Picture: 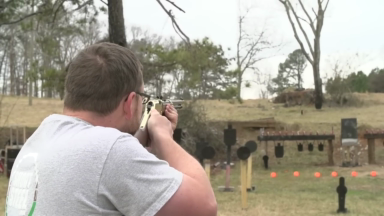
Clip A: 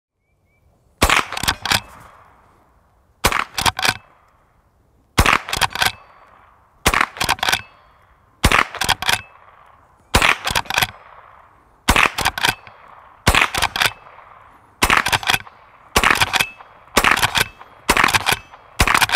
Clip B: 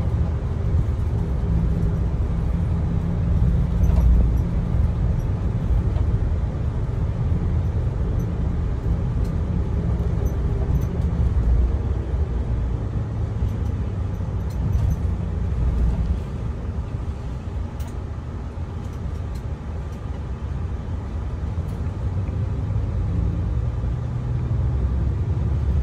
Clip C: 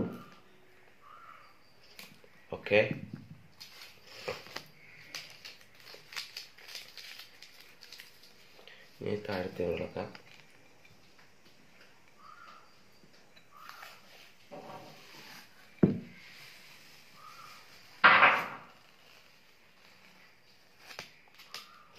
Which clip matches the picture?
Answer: A